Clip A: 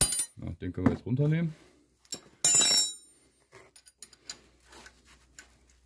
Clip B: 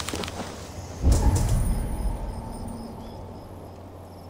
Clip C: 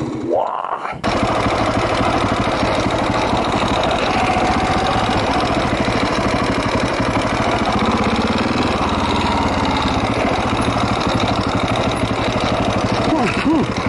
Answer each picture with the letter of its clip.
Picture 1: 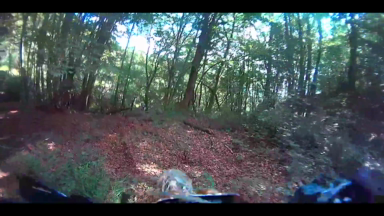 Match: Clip C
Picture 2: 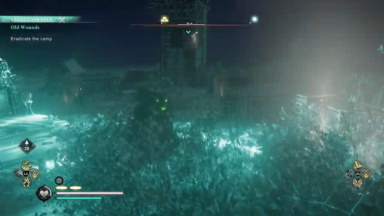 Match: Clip B